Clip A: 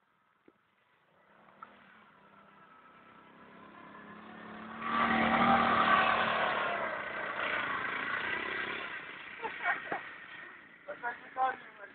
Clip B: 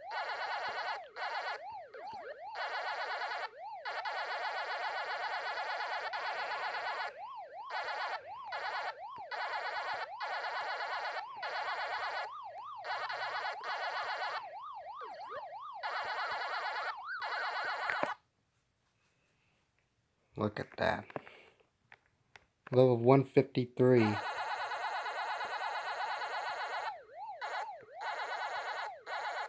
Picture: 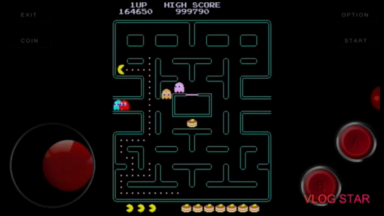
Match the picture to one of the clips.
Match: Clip B